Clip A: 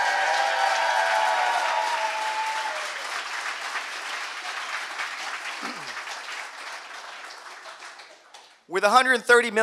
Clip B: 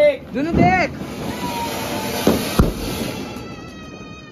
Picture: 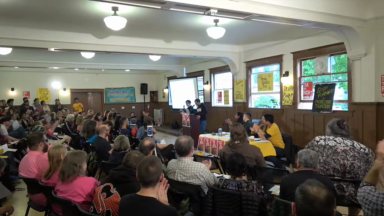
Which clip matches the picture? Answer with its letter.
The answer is A